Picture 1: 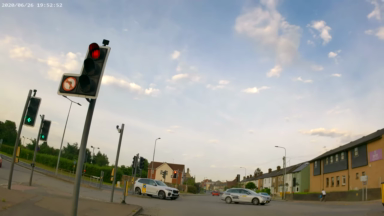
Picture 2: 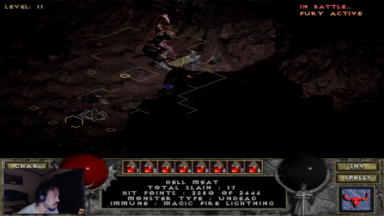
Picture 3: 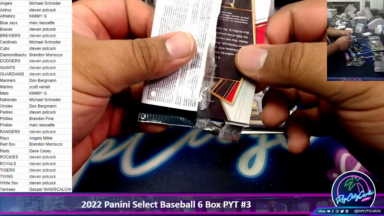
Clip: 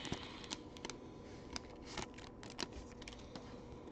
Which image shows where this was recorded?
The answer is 3